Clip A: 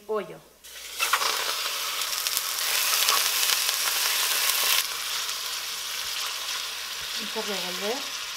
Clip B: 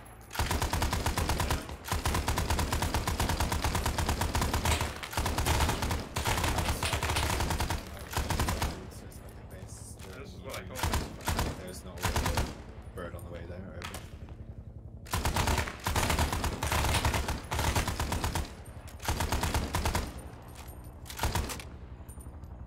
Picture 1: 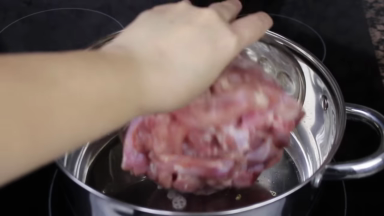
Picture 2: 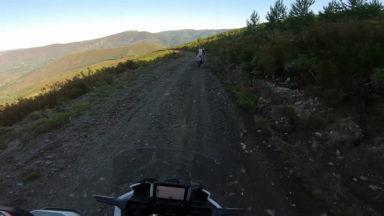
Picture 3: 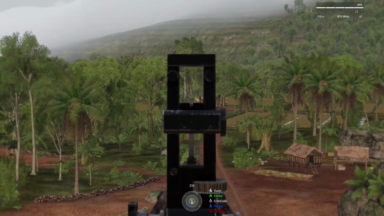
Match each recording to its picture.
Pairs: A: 1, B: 3